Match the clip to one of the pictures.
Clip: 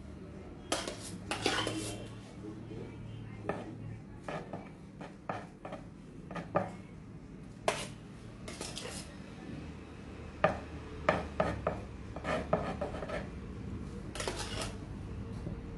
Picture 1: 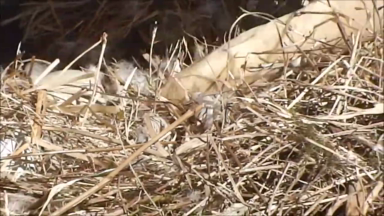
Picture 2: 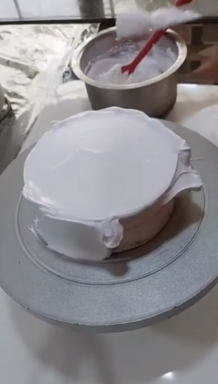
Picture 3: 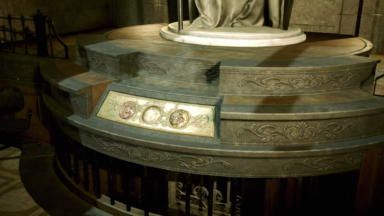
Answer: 2